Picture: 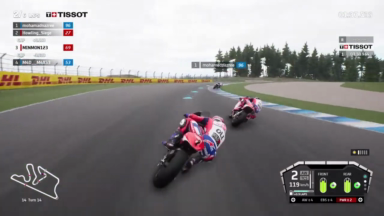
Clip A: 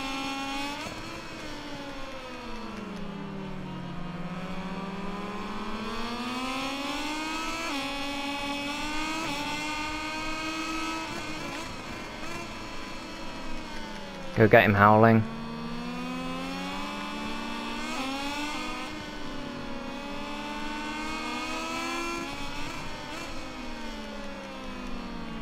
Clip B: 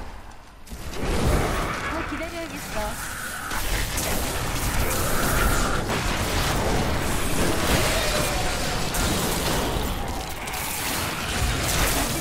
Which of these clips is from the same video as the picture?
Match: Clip A